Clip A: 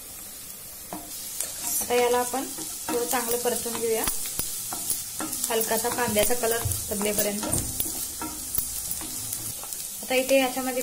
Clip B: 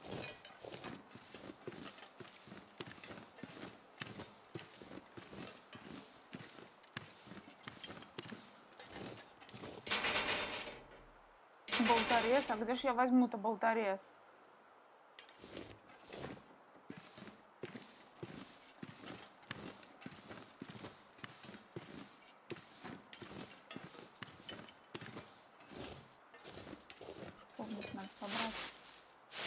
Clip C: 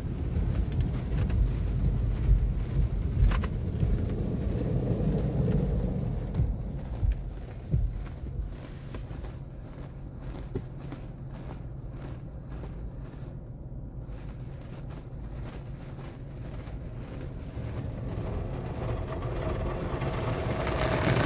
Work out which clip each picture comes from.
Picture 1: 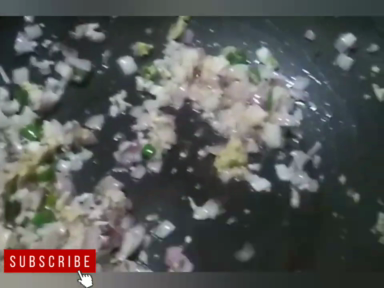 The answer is A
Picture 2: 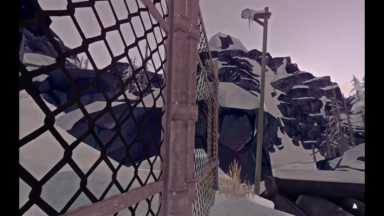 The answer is B